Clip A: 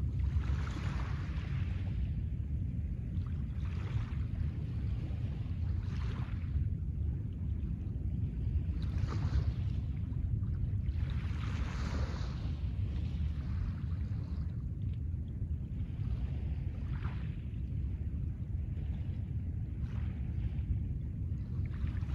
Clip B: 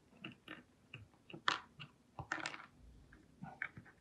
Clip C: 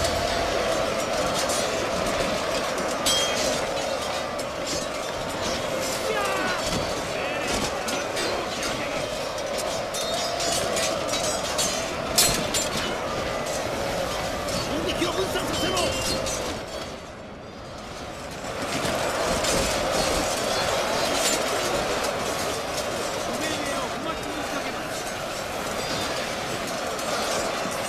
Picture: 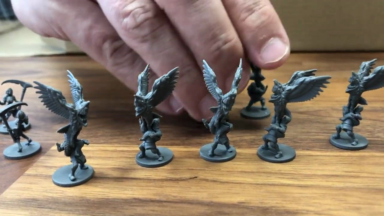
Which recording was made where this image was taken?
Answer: B